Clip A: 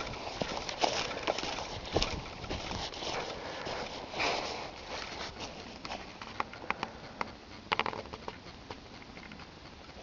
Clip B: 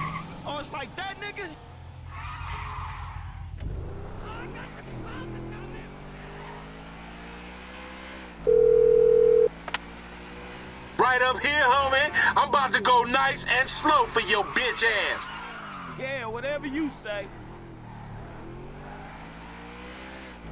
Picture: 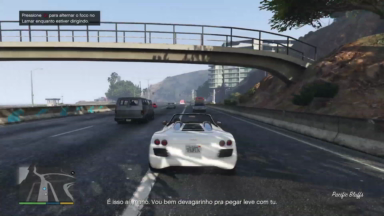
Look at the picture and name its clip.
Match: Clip B